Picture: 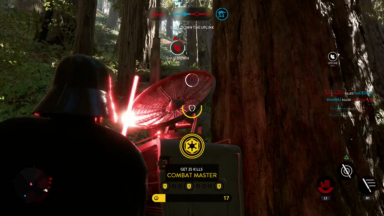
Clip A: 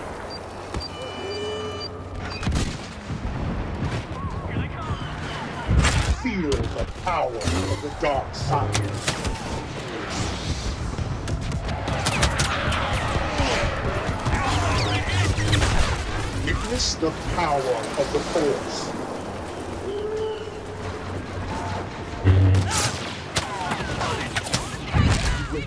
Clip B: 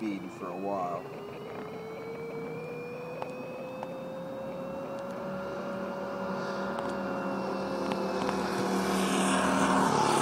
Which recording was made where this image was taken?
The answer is A